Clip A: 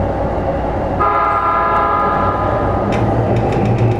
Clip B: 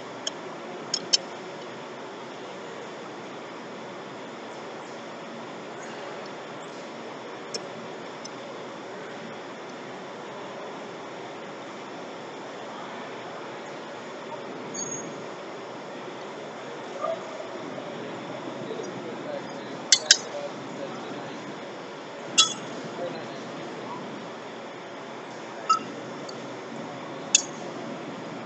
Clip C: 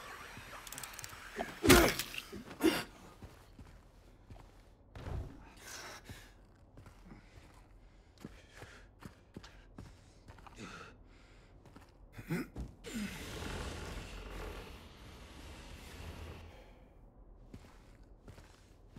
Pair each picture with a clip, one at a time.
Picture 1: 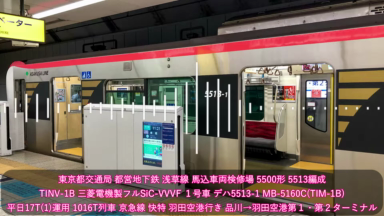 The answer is A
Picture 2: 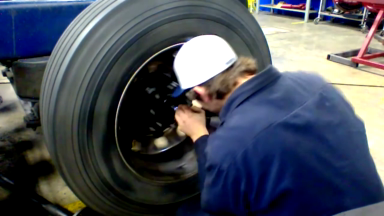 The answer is B